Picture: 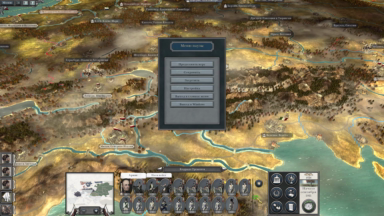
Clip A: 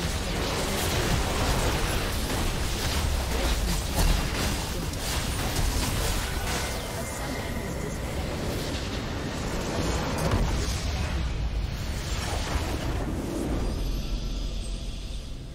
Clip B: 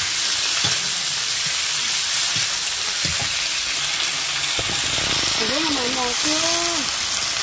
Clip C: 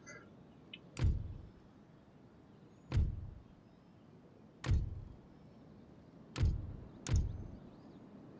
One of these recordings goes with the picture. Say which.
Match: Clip C